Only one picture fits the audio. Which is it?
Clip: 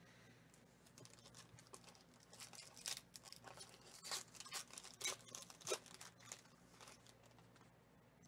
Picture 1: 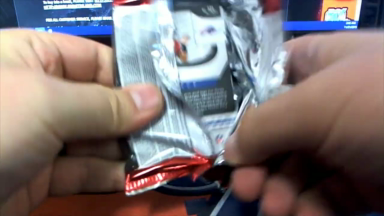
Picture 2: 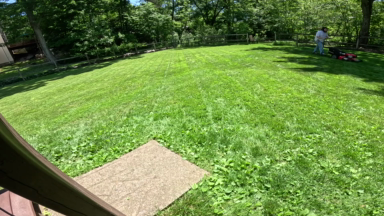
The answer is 1